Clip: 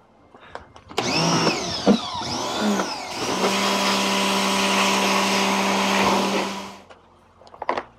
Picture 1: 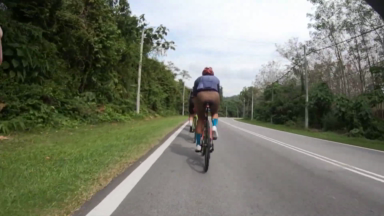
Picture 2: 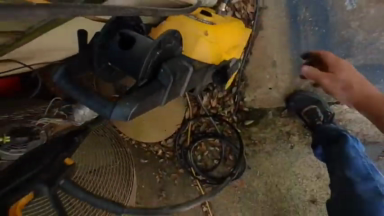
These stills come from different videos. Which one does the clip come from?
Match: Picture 2